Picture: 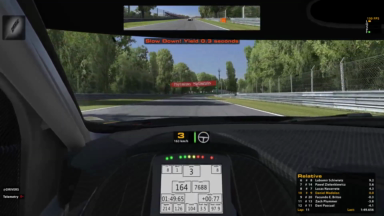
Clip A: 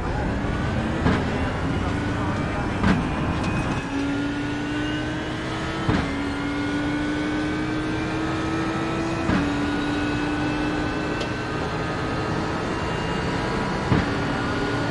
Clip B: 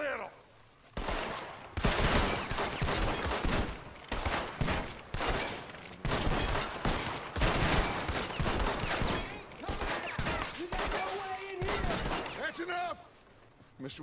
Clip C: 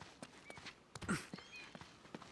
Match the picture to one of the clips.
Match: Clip A